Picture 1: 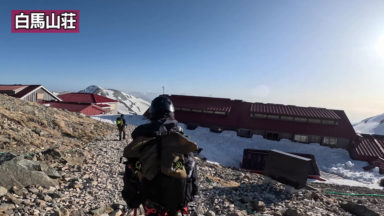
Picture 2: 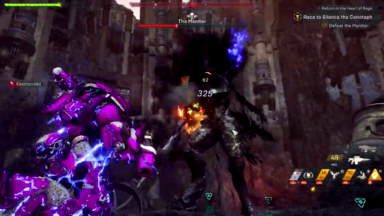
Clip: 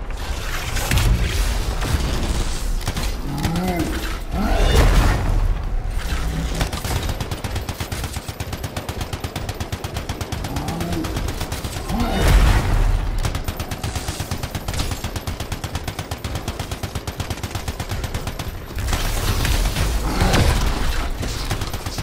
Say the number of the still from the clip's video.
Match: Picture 2